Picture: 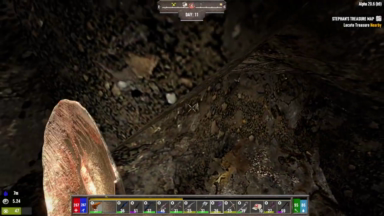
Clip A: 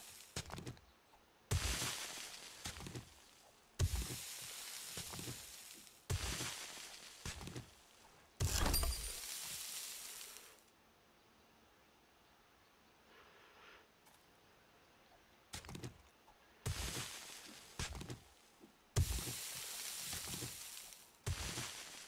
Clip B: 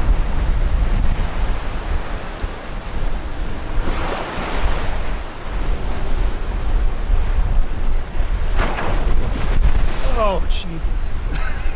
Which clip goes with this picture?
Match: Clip A